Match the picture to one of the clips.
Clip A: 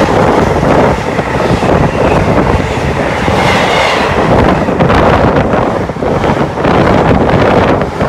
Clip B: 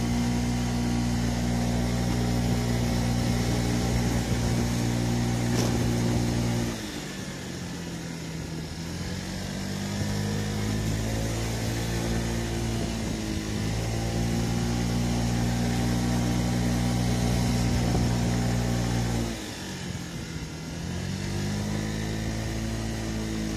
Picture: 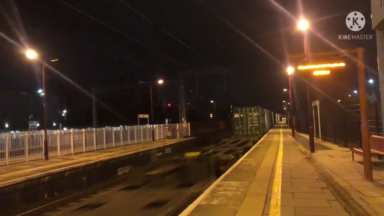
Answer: A